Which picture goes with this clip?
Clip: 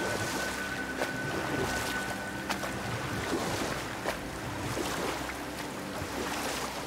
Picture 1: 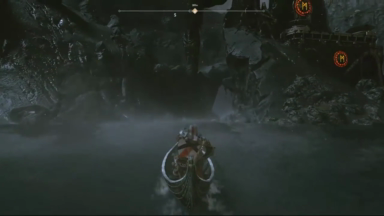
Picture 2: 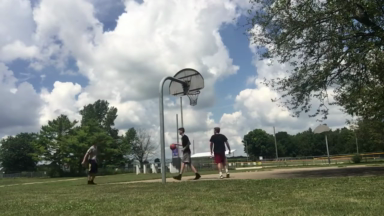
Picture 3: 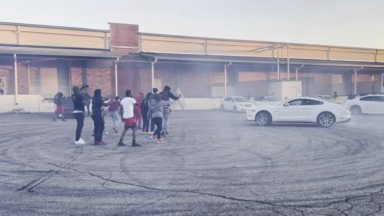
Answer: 1